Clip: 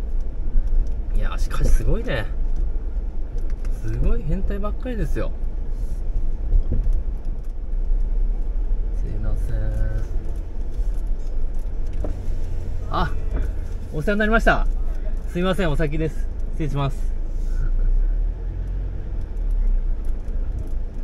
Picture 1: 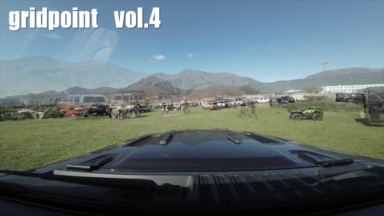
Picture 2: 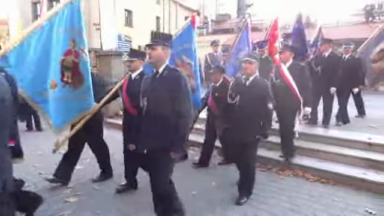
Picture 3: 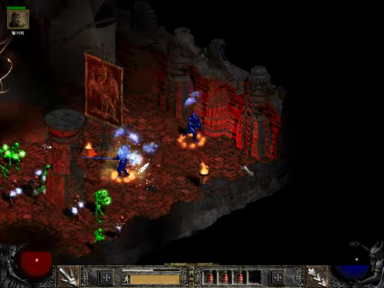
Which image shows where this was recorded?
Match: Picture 1